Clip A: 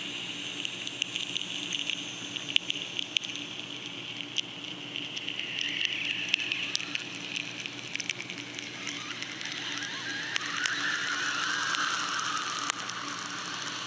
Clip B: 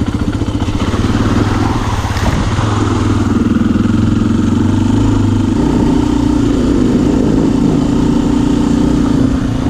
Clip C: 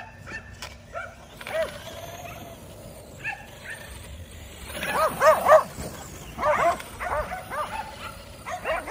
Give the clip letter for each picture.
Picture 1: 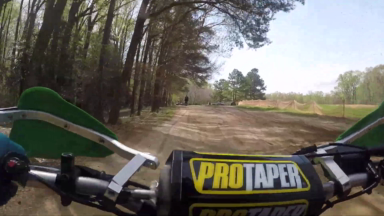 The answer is B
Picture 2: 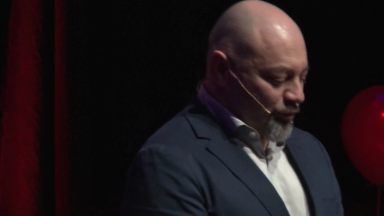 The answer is A